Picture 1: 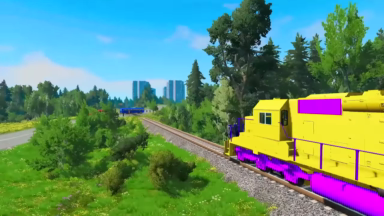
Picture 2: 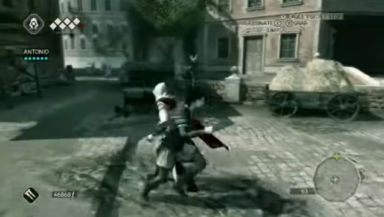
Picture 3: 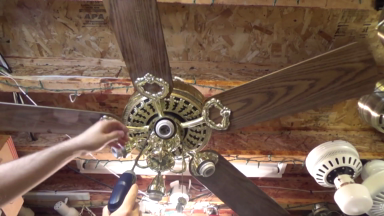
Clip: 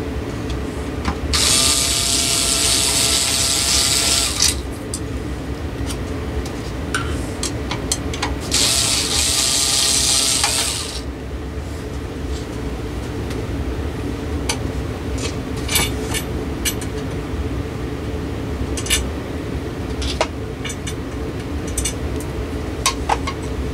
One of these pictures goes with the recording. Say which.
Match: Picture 3